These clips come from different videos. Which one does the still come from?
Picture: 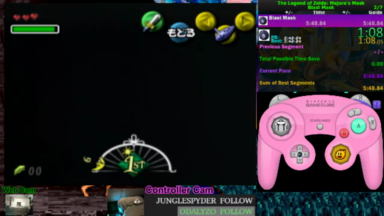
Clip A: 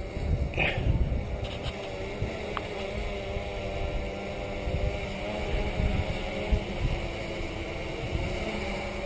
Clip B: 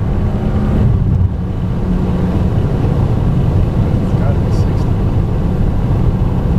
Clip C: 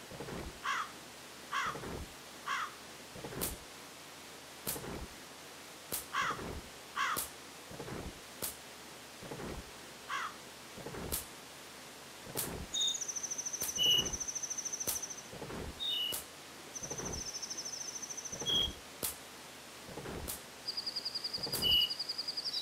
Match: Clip C